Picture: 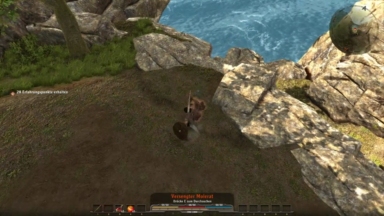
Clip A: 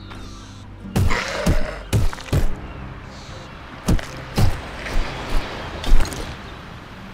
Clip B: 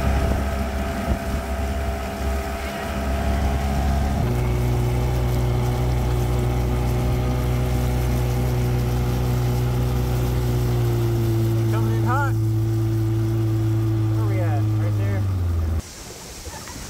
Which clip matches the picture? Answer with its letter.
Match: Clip A